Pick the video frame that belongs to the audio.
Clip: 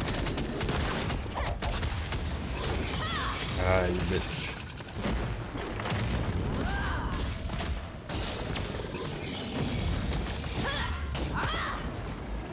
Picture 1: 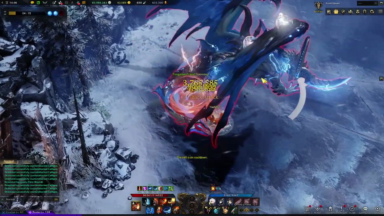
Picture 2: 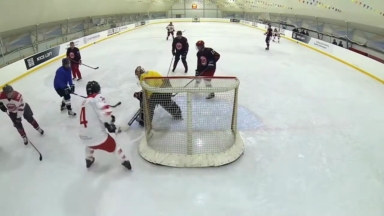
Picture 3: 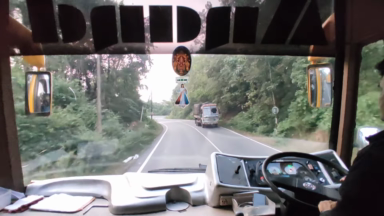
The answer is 1